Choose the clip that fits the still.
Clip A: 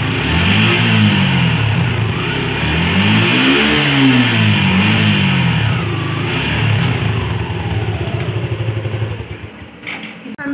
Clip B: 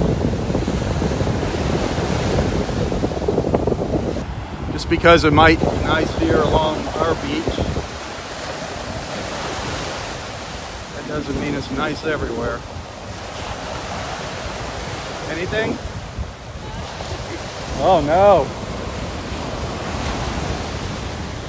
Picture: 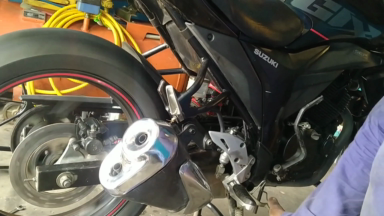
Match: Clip A